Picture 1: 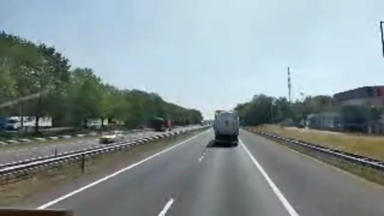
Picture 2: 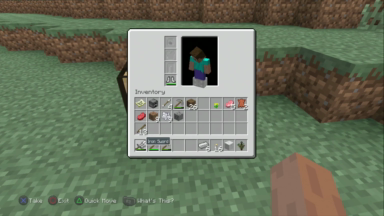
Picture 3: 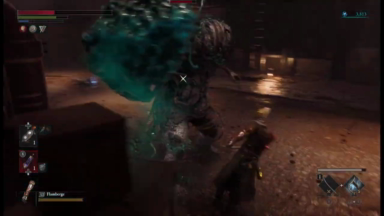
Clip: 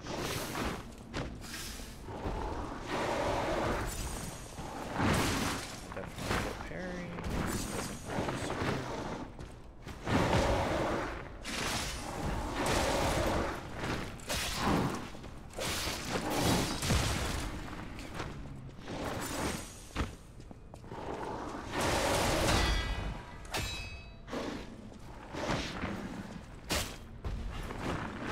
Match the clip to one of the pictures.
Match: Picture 3